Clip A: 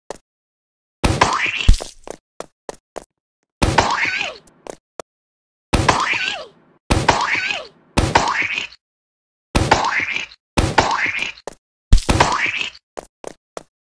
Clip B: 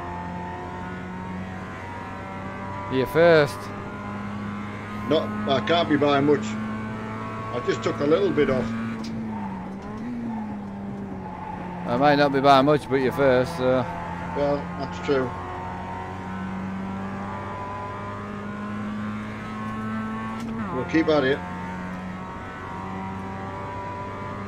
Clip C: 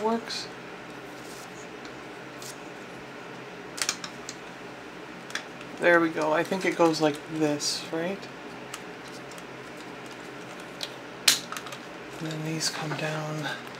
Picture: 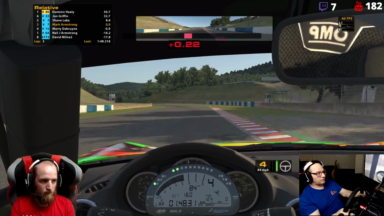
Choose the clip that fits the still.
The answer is B